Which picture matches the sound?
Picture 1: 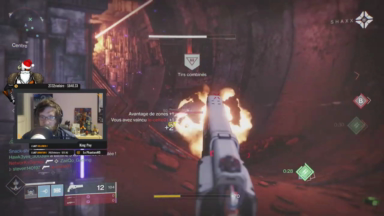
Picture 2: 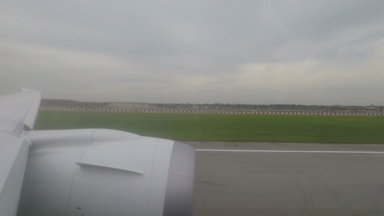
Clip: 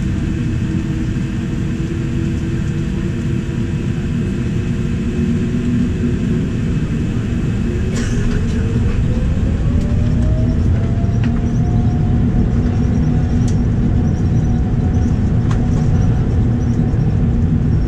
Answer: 2